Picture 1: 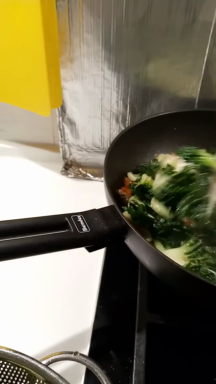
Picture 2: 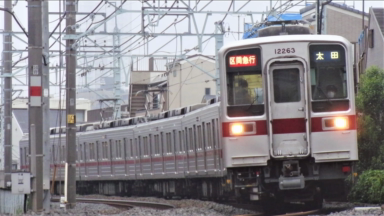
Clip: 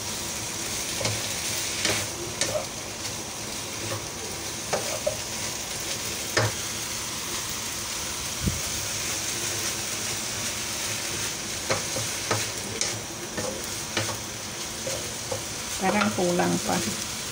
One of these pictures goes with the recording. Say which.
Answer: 1